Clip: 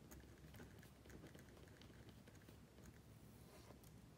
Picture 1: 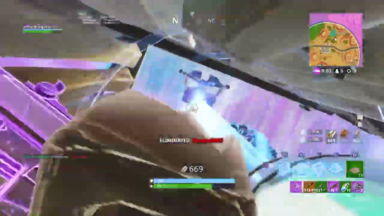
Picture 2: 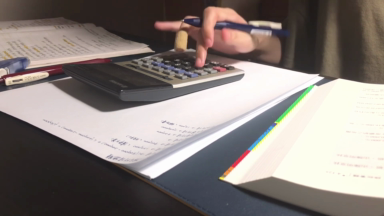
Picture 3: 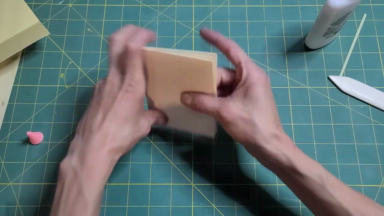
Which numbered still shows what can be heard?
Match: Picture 2